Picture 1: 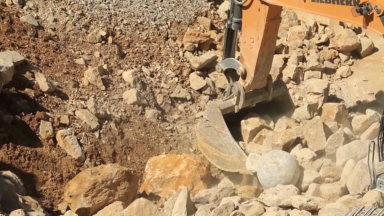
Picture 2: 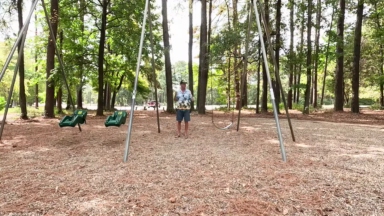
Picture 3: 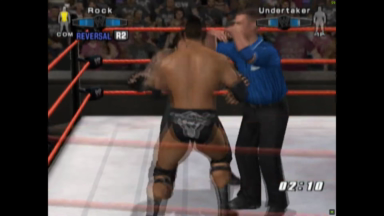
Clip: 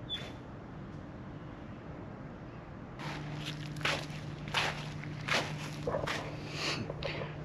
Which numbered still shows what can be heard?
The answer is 2